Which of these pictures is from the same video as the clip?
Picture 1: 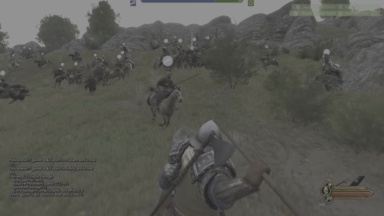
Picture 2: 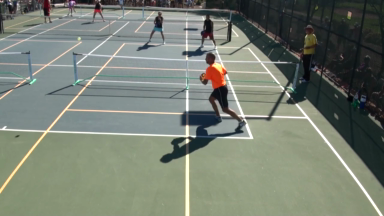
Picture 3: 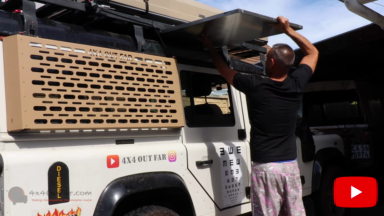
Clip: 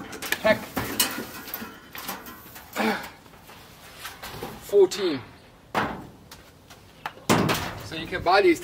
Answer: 3